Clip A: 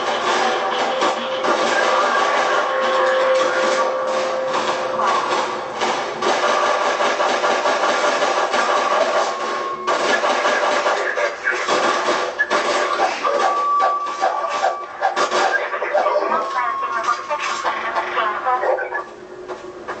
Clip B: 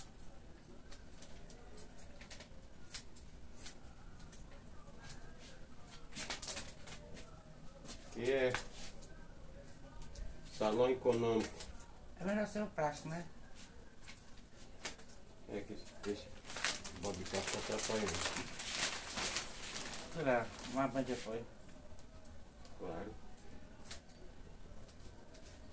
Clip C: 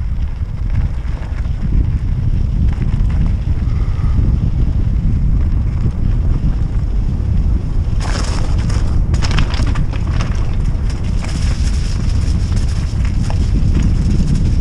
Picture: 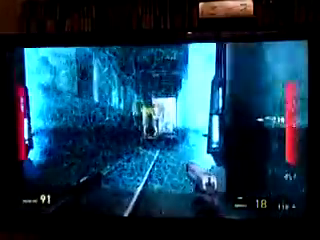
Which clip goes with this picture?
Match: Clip A